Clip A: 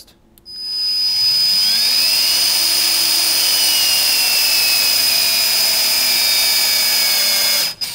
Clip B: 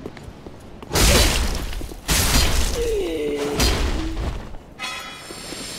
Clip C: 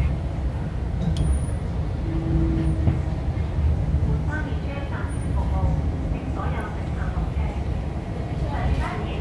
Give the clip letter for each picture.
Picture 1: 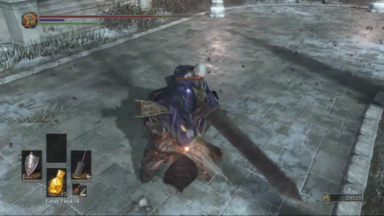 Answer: B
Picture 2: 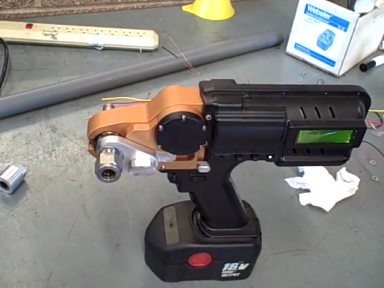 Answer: A